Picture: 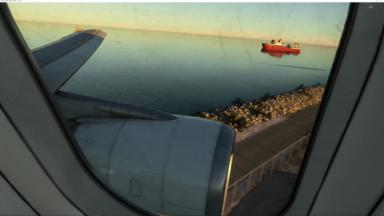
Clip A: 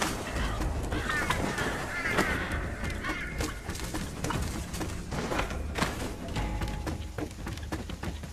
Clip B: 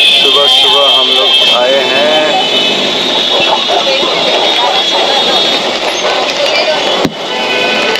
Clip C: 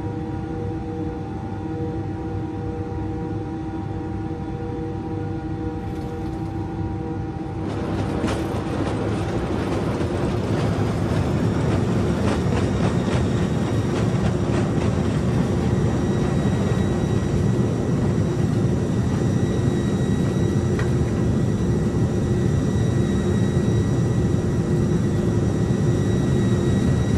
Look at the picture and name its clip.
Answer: C